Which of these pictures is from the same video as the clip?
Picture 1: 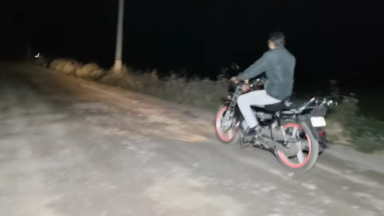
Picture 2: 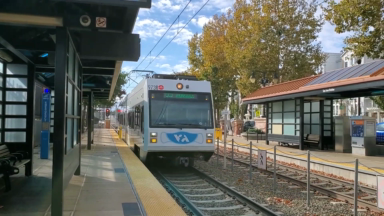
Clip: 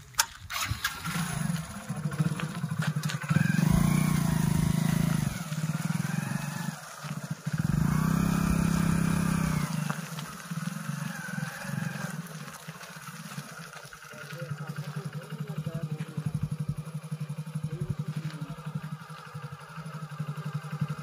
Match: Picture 1